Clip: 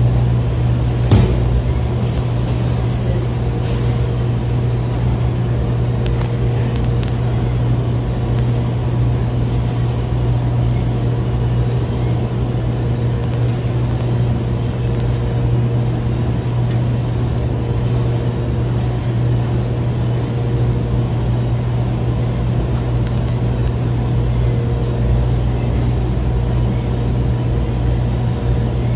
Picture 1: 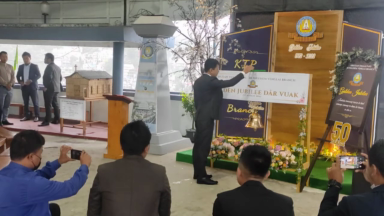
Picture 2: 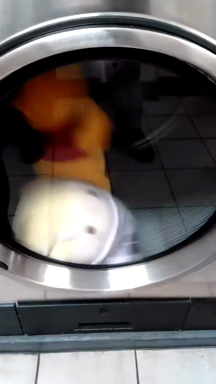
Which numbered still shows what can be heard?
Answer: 2